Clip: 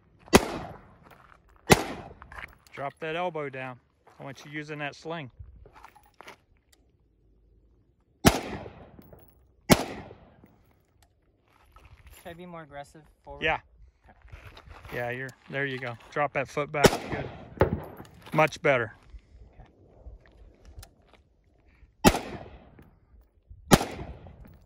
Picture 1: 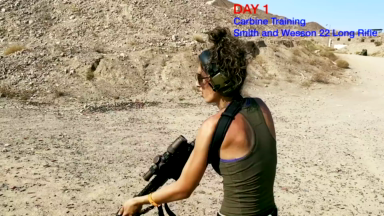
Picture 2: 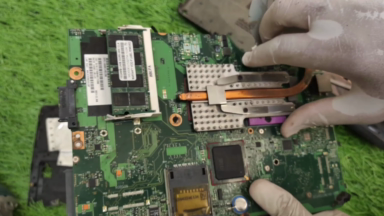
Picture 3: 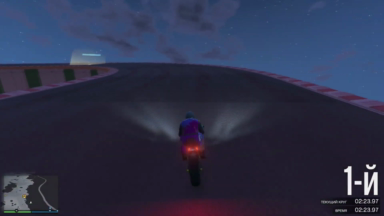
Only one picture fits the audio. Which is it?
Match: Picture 1